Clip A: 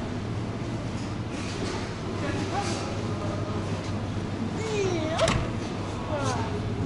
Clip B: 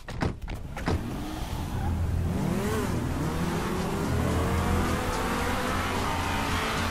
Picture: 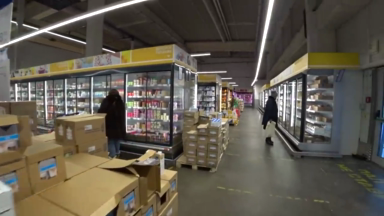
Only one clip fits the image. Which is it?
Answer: A